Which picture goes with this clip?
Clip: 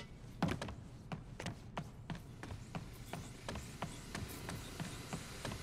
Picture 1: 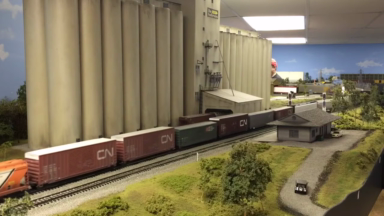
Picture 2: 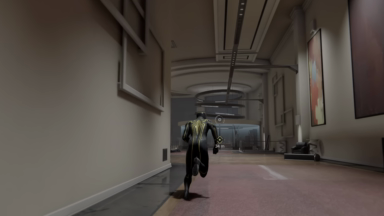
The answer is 2